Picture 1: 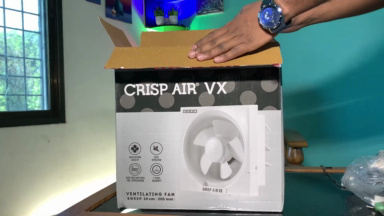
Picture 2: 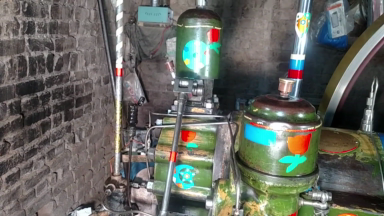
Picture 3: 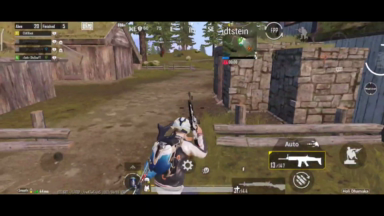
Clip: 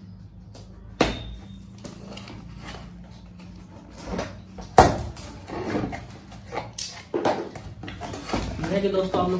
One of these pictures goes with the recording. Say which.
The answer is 1